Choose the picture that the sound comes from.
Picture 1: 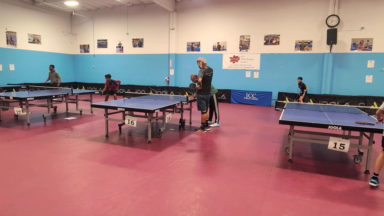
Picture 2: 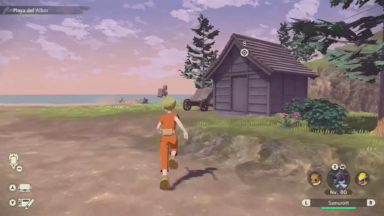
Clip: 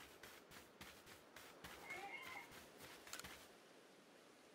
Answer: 2